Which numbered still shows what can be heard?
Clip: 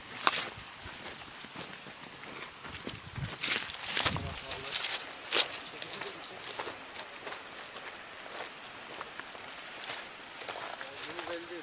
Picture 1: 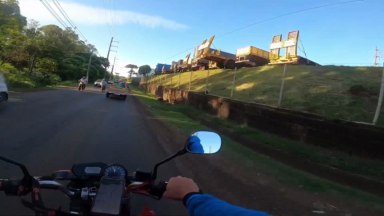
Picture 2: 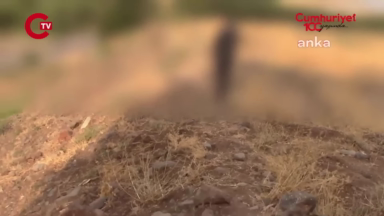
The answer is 2